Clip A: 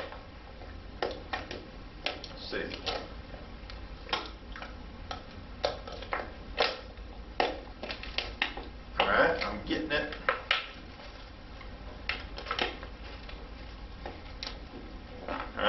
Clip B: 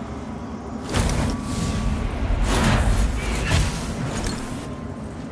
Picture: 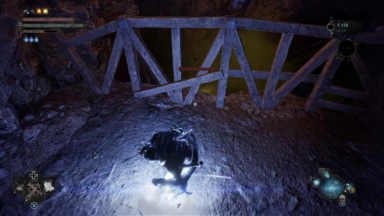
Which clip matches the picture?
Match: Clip B